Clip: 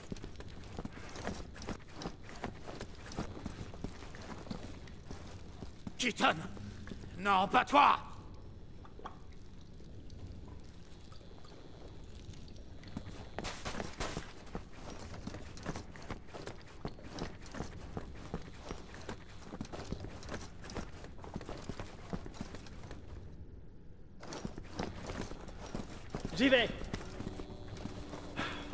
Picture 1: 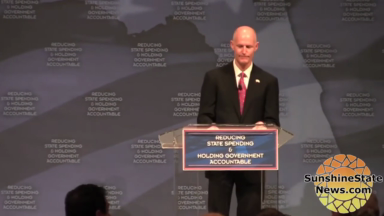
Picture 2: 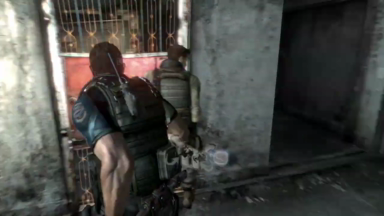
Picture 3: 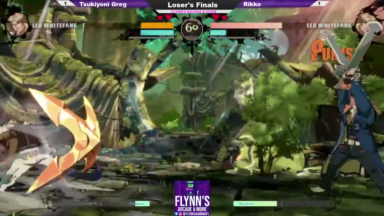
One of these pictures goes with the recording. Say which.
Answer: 2